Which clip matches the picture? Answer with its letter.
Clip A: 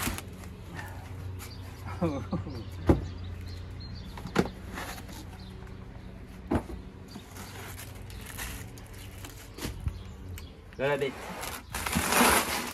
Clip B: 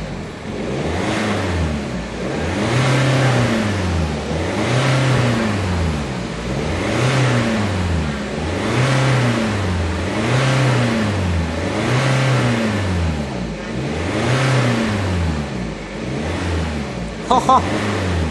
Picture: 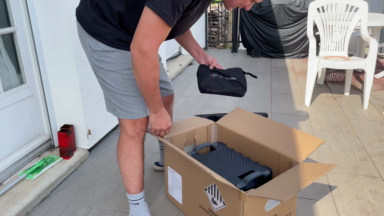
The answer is A